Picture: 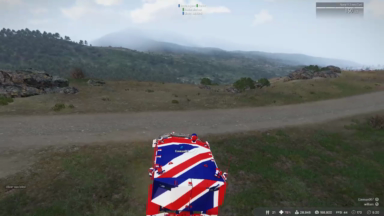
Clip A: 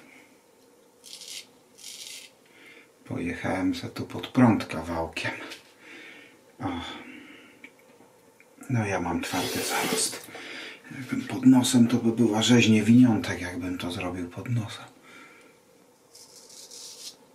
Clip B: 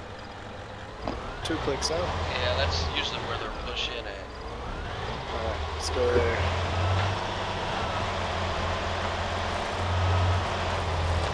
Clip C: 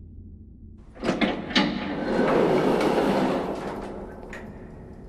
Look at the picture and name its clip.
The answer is B